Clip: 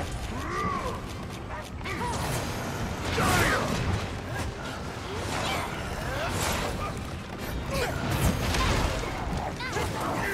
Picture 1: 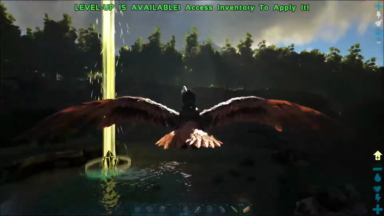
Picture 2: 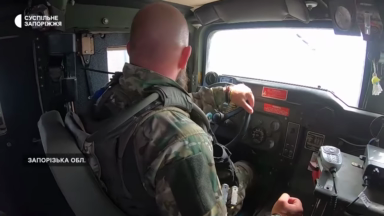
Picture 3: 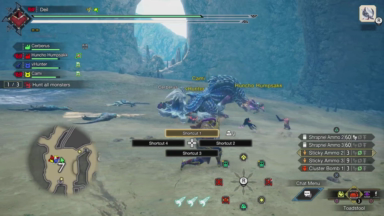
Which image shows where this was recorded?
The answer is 3